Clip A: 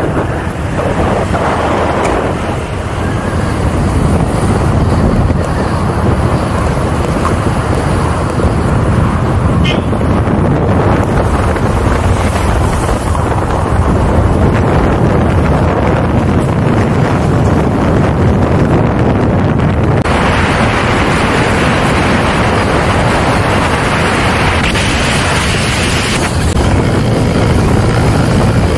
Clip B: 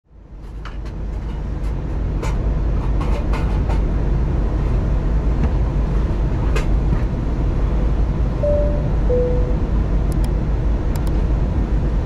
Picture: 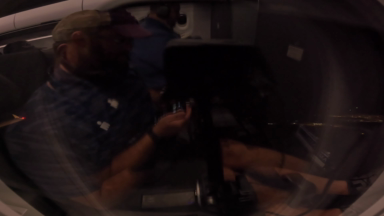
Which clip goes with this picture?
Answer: B